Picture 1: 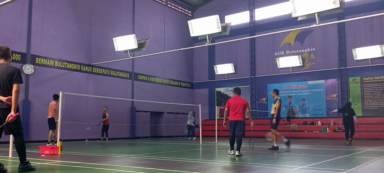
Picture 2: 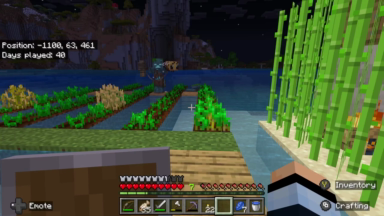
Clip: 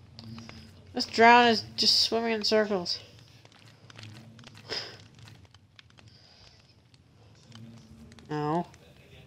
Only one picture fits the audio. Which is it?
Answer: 2